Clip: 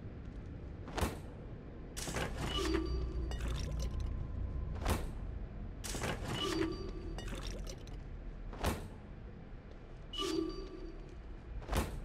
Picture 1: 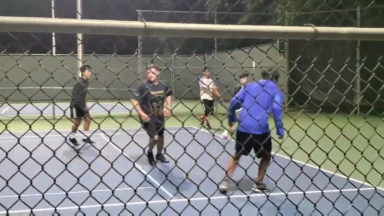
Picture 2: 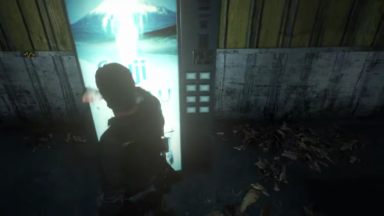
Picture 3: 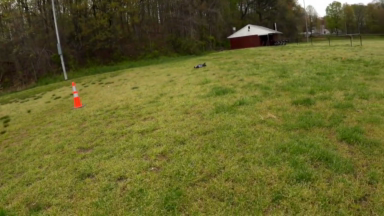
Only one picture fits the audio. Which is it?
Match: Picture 2